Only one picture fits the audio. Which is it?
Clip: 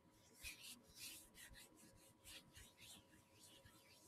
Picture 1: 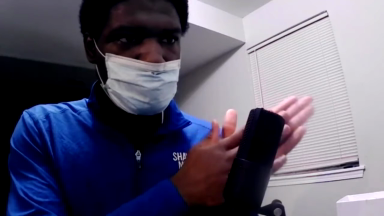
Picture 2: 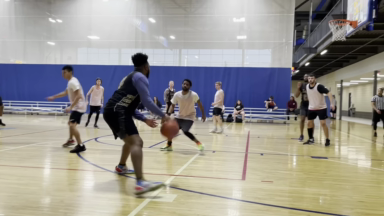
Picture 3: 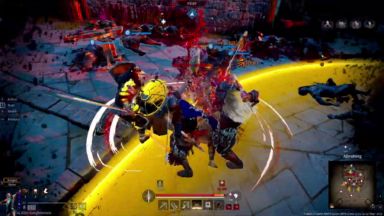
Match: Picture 1